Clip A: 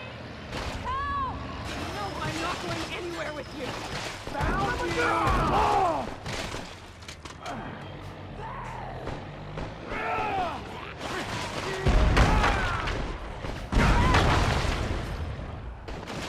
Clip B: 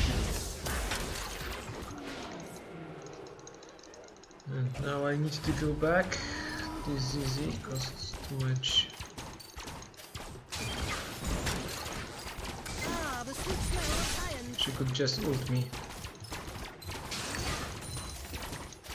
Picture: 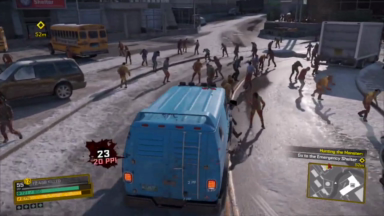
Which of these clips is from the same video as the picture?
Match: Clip A